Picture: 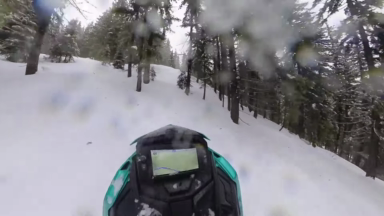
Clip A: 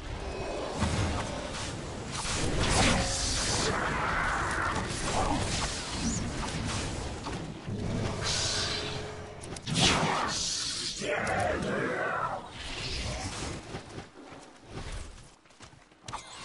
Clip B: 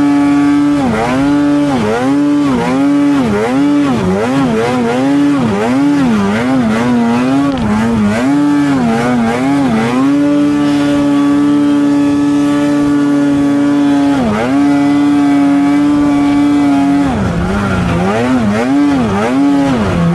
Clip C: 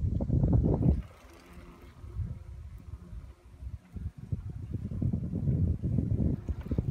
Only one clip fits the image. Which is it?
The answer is B